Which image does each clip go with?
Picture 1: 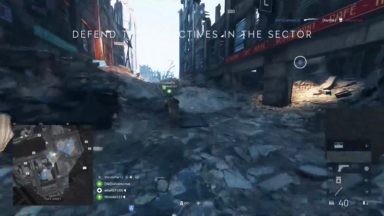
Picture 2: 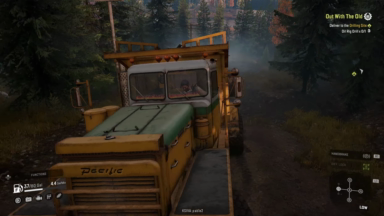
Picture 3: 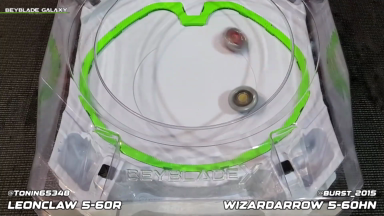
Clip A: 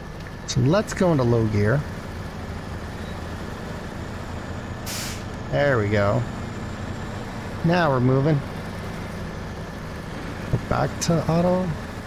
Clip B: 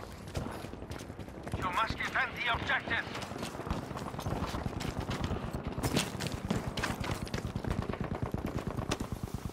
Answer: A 2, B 1